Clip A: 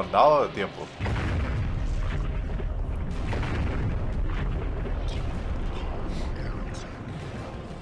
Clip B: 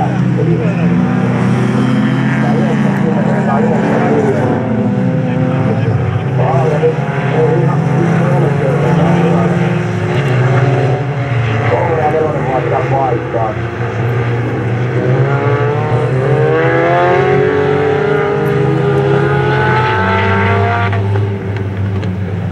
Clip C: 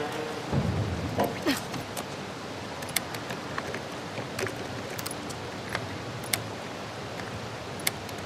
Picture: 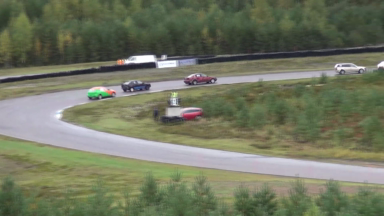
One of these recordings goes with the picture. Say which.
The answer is B